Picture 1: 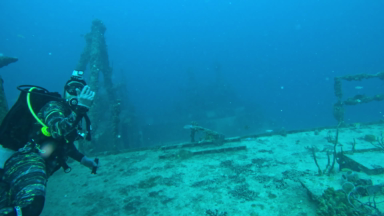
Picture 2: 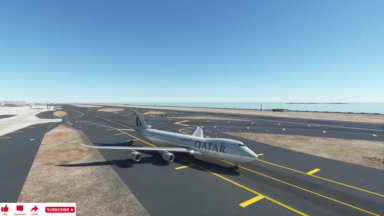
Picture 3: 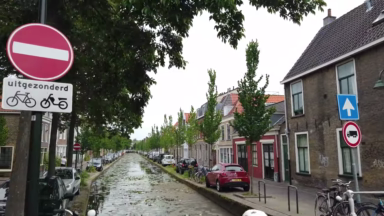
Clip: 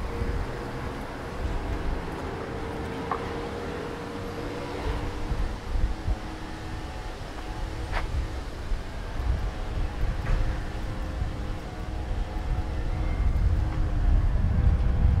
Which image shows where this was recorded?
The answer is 3